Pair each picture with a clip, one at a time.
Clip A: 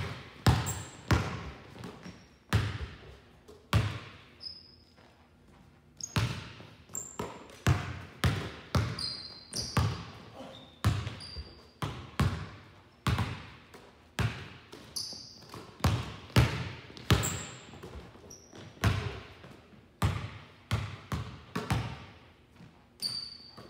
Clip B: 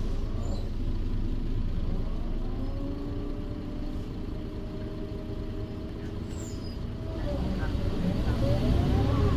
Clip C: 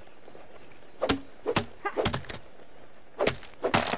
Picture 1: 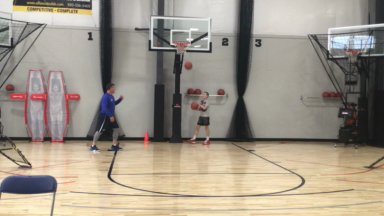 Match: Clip A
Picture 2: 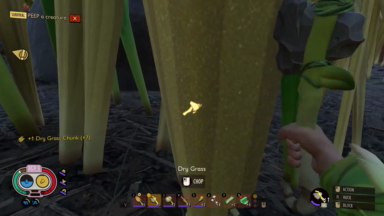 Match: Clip C